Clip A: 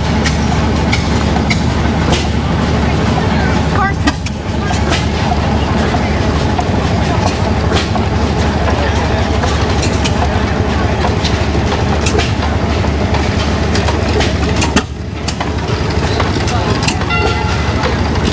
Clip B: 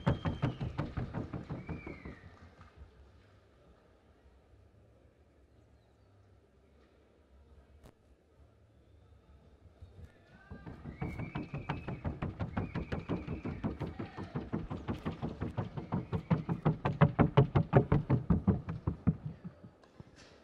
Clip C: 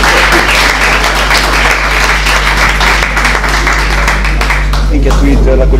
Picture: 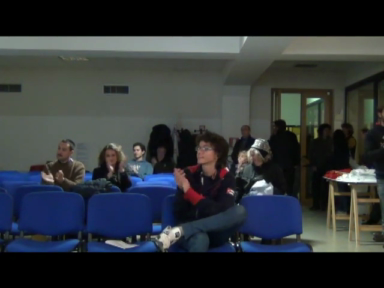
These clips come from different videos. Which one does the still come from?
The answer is C